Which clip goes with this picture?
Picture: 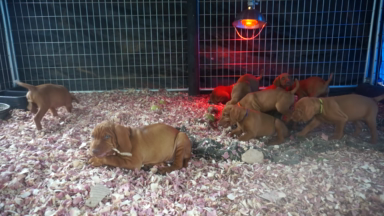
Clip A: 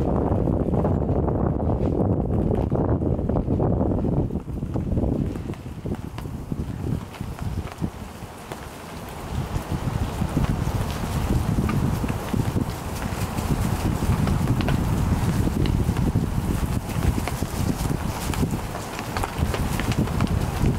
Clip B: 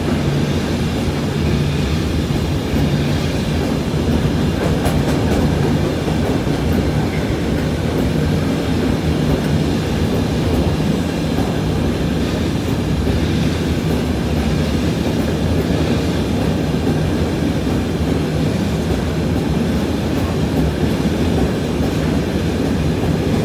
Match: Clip A